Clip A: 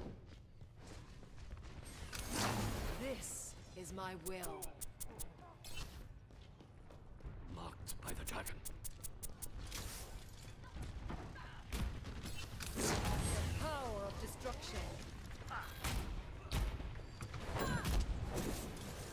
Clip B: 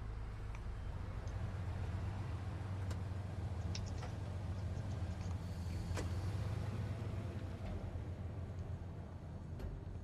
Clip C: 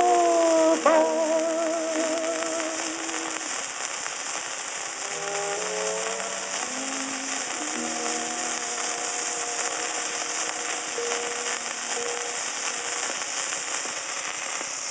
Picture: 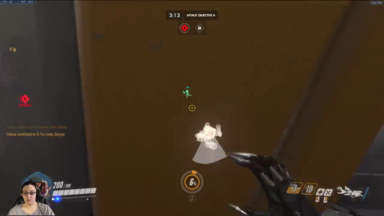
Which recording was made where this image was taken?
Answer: A